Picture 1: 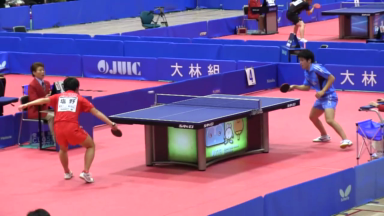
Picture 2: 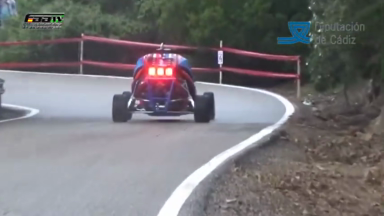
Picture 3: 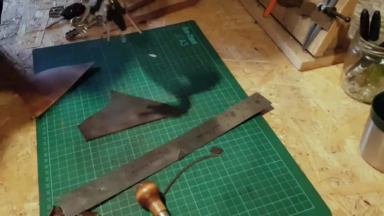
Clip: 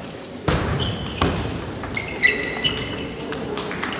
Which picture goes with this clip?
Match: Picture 1